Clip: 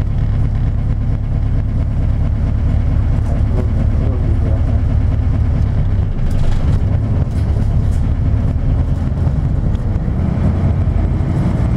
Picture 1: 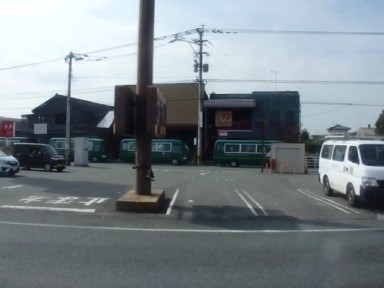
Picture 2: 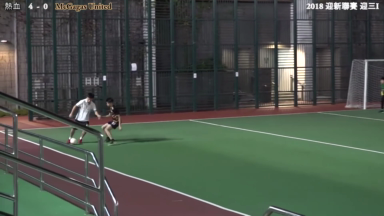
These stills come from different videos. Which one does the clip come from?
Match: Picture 1